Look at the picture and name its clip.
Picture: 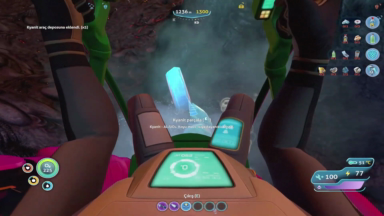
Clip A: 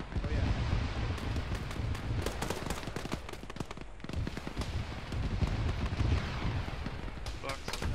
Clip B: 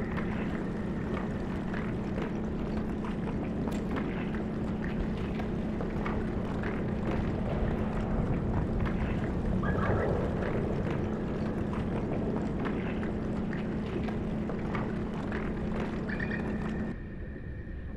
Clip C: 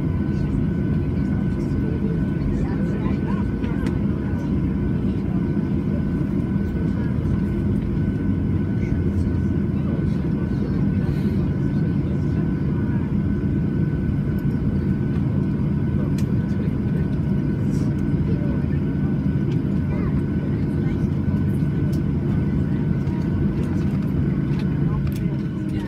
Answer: B